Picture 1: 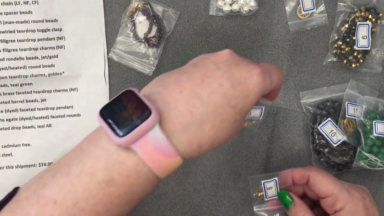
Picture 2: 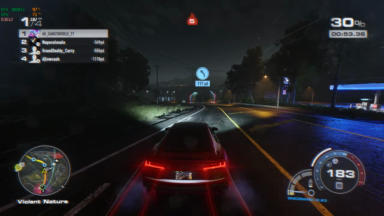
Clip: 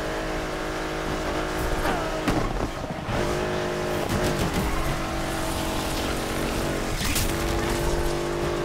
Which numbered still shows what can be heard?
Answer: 2